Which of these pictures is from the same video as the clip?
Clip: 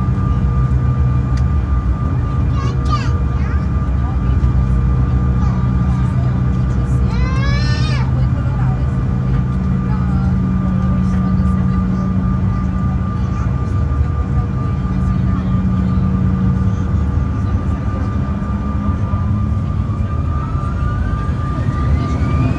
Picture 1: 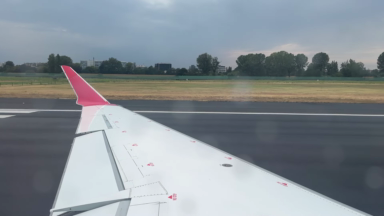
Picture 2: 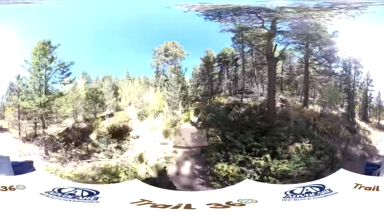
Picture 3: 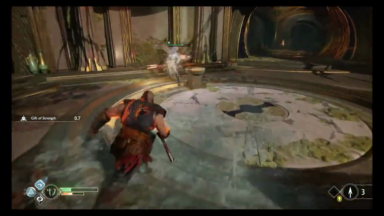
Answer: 1